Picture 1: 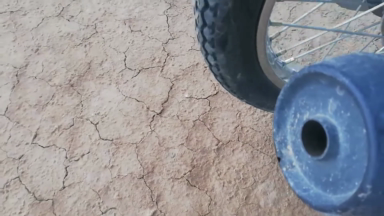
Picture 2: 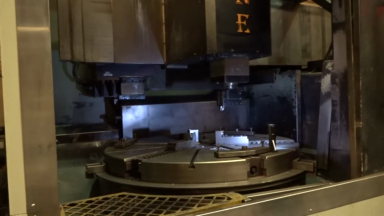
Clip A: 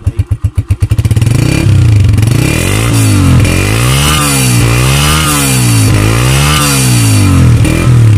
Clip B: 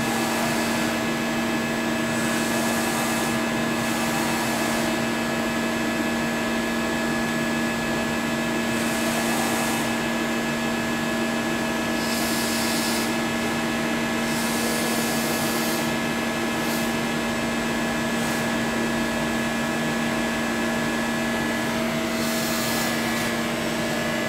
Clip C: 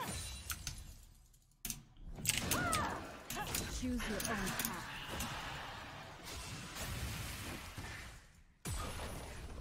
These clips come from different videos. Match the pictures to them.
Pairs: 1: A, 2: B